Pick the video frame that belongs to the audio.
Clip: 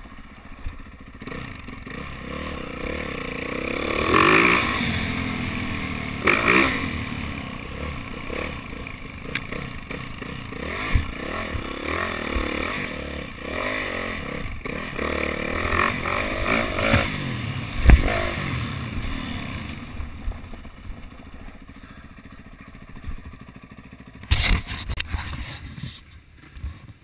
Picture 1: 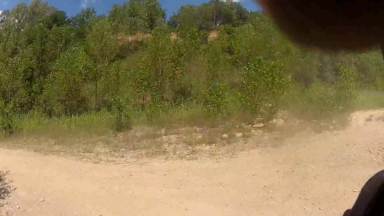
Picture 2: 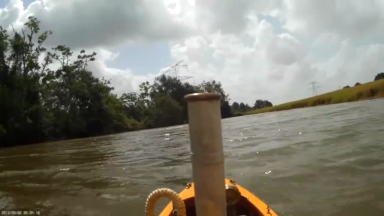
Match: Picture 1